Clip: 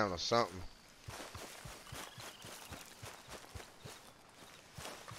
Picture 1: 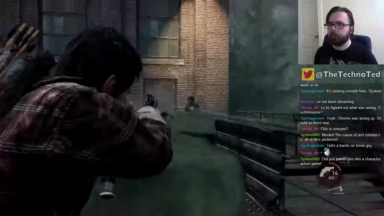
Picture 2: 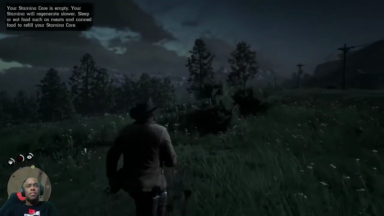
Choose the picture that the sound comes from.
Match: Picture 2